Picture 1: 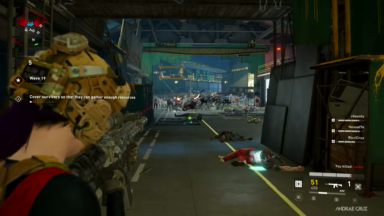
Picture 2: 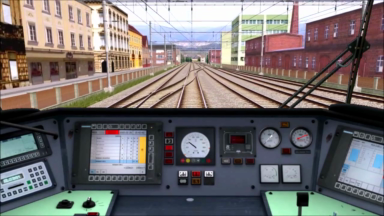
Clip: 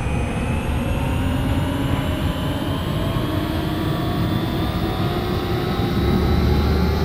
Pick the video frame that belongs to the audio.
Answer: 2